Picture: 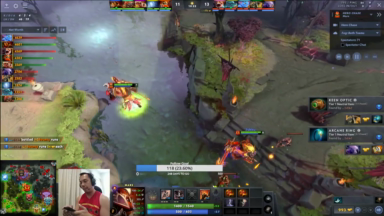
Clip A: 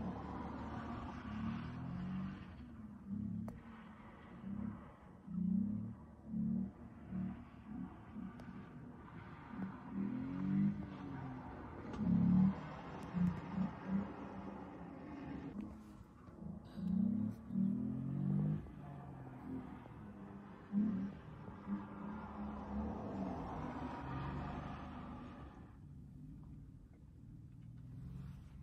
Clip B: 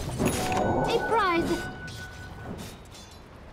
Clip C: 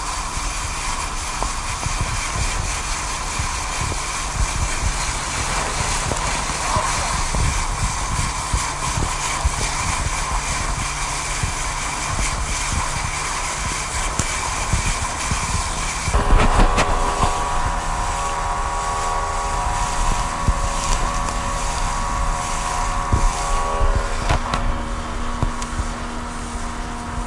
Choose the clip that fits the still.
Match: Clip B